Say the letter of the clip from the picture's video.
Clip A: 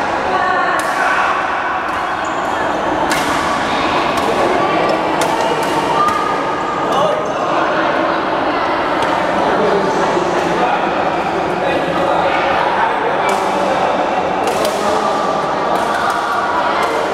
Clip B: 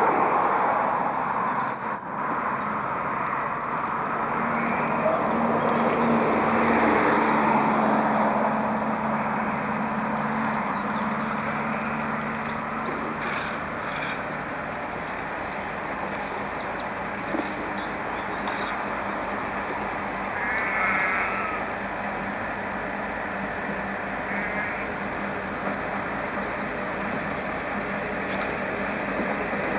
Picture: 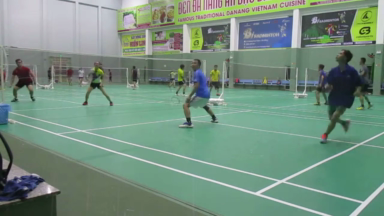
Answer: A